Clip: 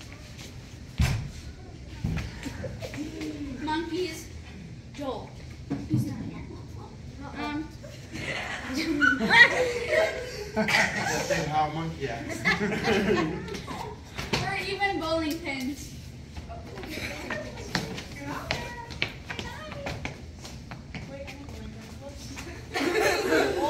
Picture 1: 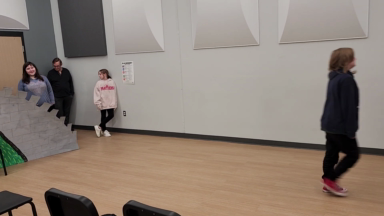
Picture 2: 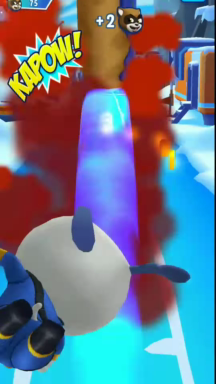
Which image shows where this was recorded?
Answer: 1